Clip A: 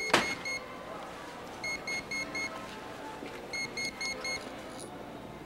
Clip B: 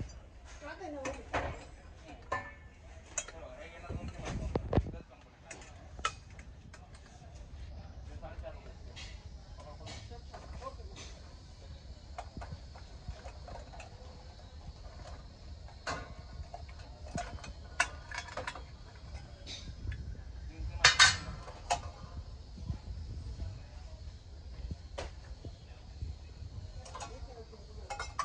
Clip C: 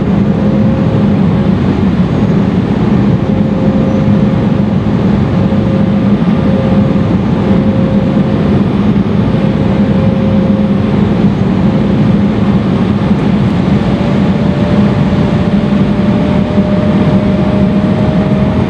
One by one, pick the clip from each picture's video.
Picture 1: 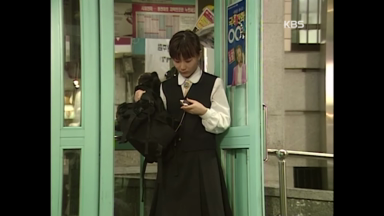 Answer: A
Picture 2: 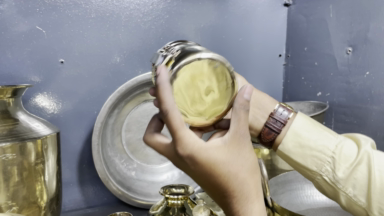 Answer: B